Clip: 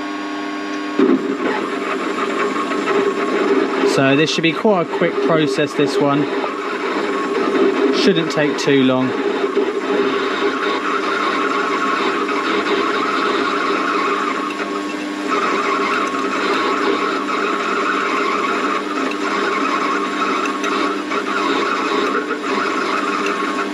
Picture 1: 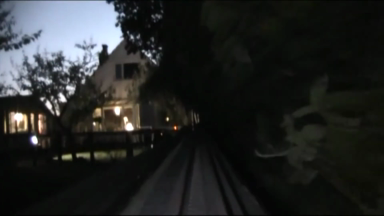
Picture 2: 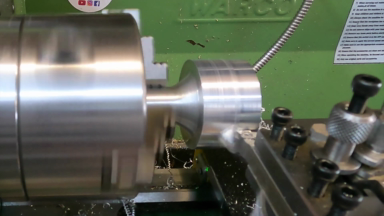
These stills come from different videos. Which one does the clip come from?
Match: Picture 2